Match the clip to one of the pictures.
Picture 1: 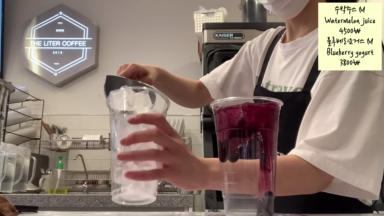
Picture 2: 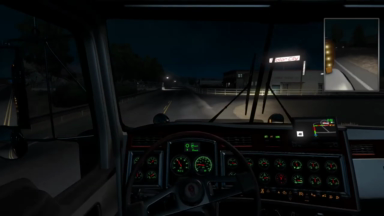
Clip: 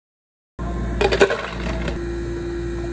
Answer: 1